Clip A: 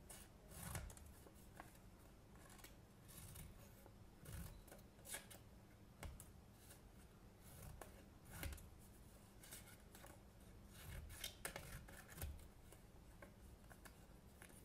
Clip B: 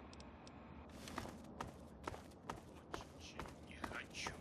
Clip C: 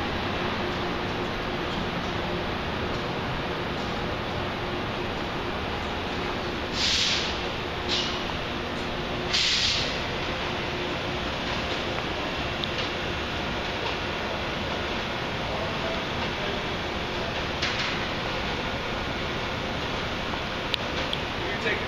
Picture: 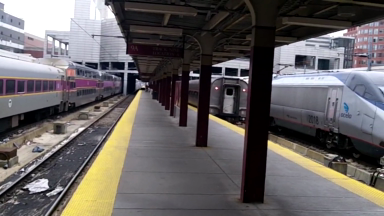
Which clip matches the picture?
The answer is C